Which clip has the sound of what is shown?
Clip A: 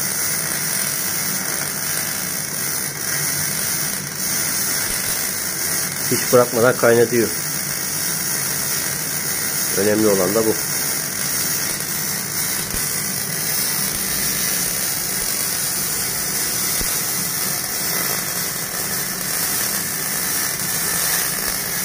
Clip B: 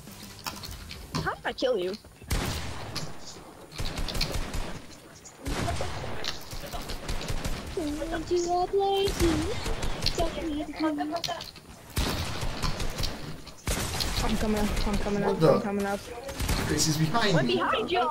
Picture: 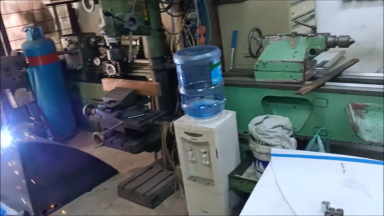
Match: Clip A